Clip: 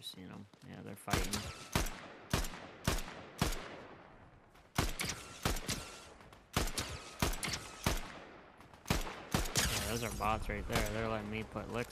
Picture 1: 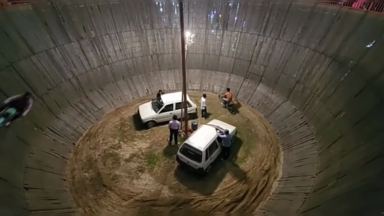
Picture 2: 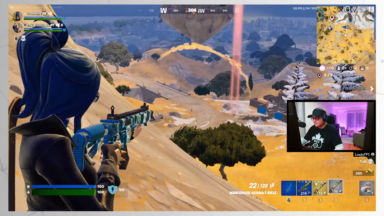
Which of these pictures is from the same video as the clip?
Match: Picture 2